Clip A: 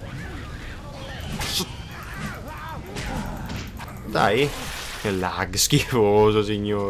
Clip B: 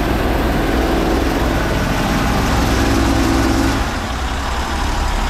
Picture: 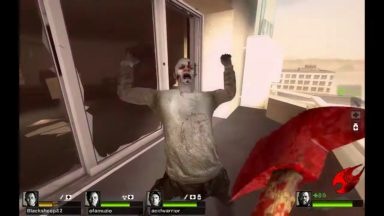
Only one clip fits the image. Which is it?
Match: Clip A